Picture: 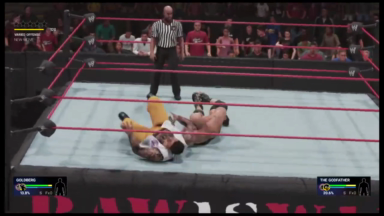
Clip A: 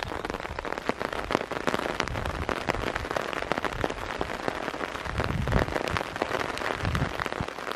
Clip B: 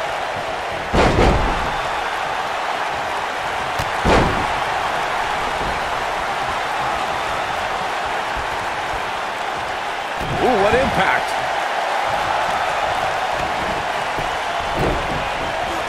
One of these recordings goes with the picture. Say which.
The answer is B